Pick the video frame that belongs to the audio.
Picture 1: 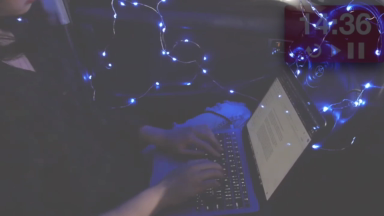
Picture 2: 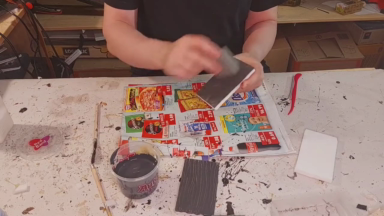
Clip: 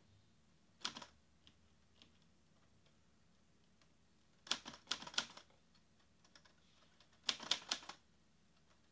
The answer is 1